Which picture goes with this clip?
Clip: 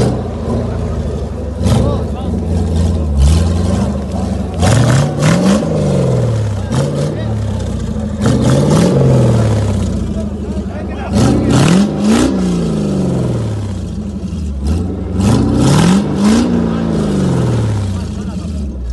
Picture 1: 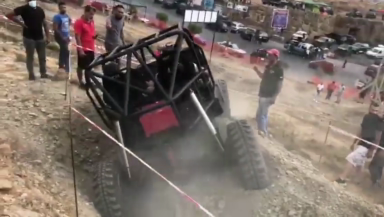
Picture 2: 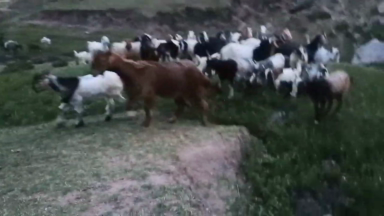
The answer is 1